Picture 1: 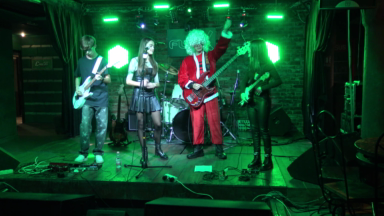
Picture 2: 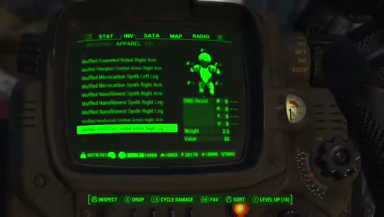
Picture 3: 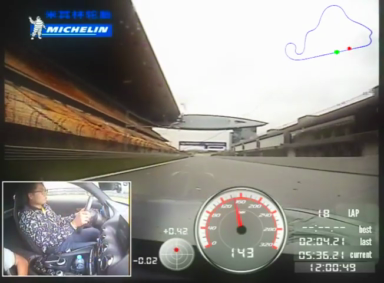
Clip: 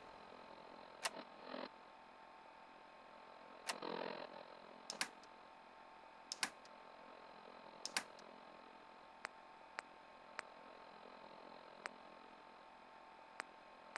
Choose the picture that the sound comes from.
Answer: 2